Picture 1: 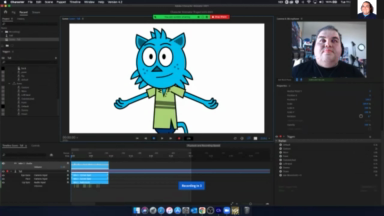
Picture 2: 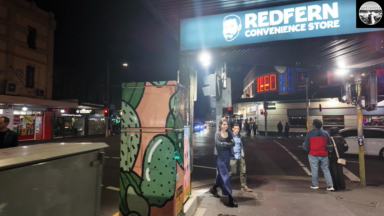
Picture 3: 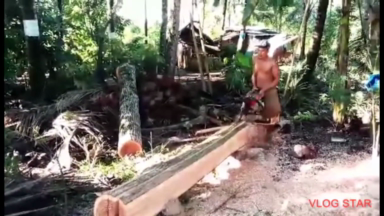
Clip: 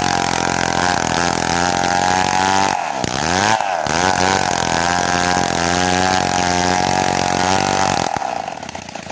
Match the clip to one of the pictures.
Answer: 3